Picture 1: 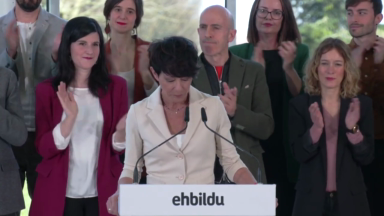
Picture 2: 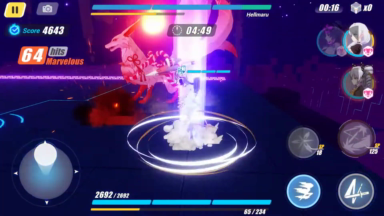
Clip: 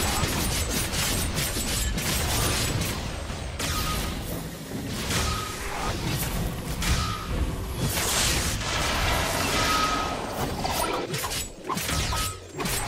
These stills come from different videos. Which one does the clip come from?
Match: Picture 2